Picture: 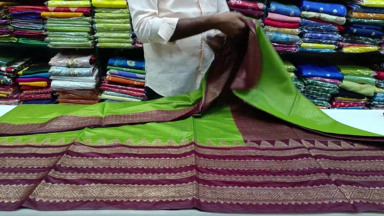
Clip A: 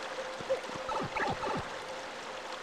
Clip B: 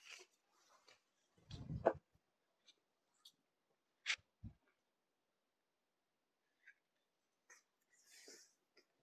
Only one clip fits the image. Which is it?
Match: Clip B